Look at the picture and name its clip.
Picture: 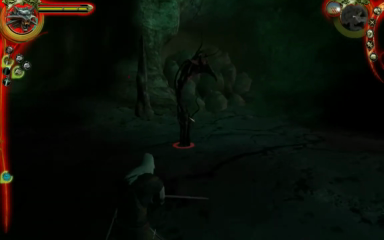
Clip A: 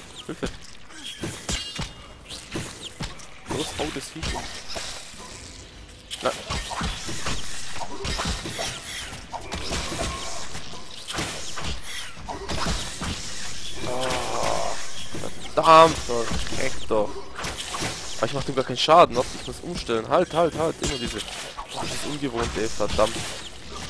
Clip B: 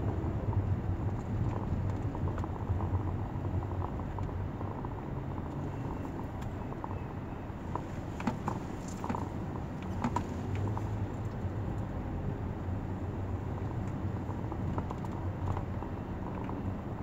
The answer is A